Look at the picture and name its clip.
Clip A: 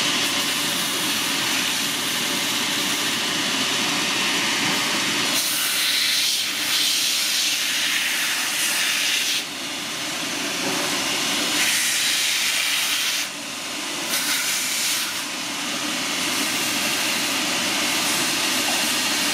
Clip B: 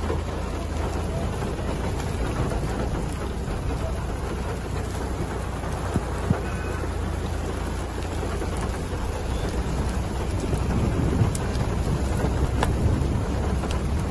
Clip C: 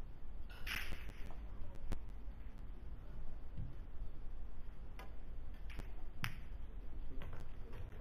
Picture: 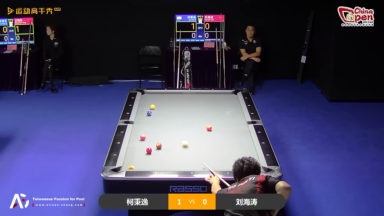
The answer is C